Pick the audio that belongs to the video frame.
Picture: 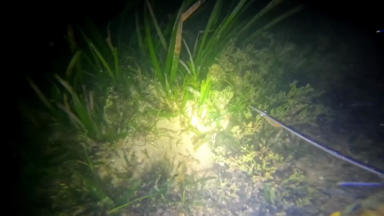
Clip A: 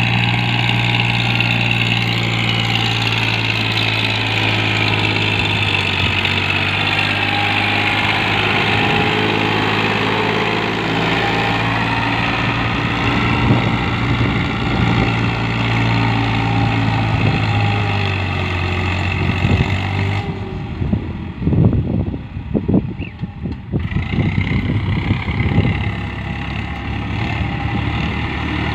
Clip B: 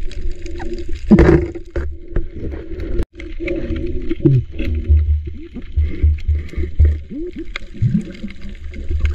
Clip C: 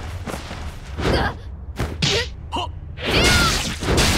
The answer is B